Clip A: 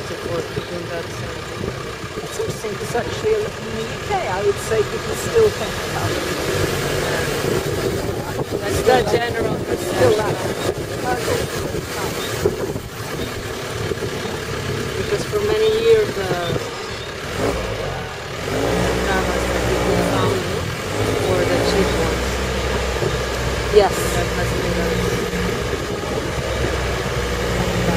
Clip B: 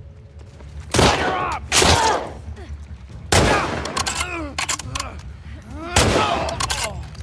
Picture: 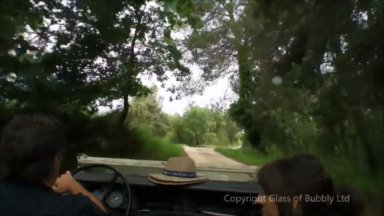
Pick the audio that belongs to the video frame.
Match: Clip A